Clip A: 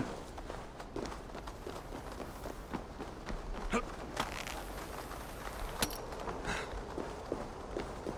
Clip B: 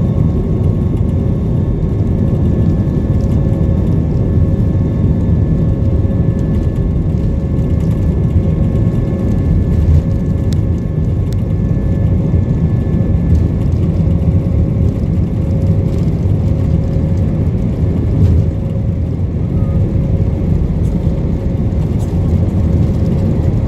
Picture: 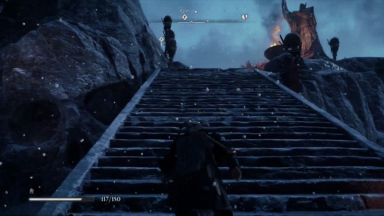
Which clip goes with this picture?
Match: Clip A